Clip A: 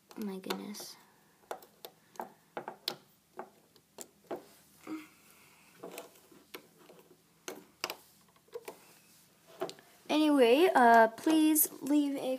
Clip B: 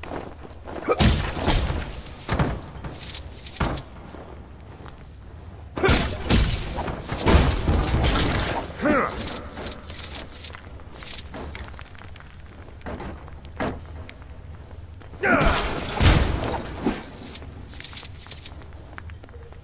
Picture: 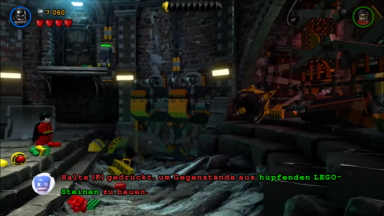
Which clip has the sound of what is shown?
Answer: B